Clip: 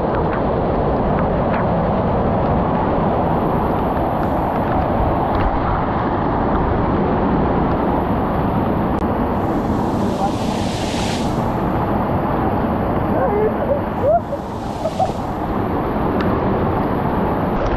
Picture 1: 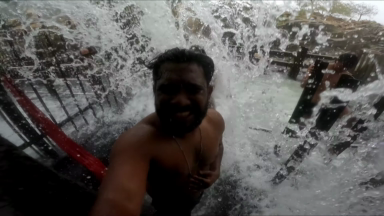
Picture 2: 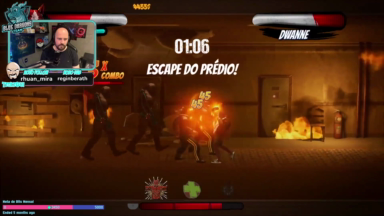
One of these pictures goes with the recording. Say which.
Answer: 1